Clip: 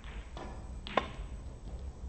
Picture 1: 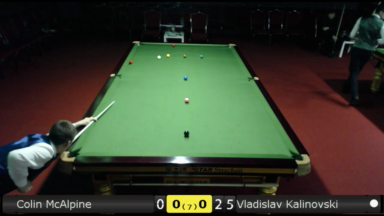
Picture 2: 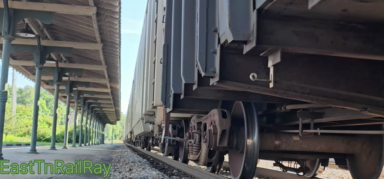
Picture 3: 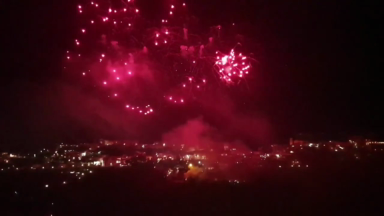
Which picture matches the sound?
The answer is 1